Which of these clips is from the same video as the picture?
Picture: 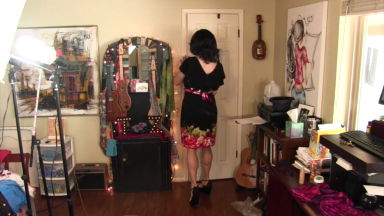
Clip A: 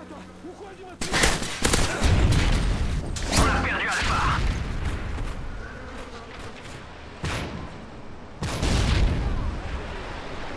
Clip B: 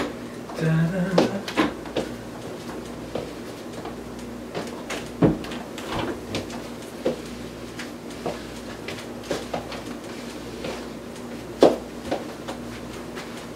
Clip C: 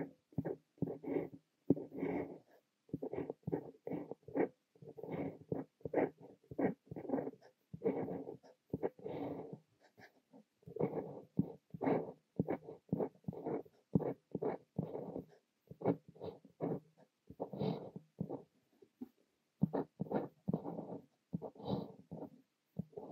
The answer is B